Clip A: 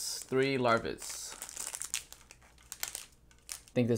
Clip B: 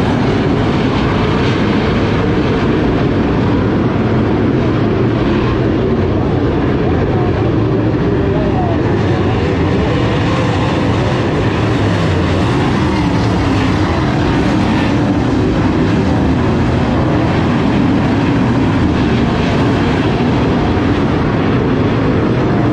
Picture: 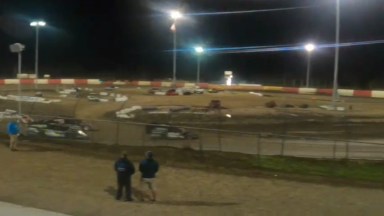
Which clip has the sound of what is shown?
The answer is B